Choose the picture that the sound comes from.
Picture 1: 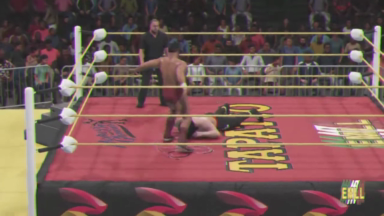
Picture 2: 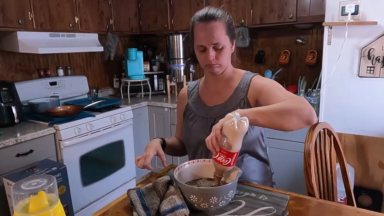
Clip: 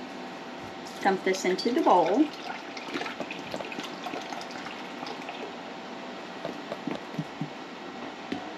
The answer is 2